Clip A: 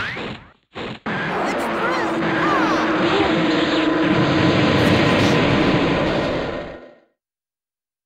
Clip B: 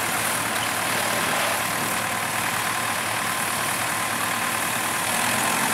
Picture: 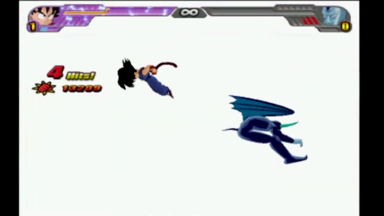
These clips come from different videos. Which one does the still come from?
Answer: A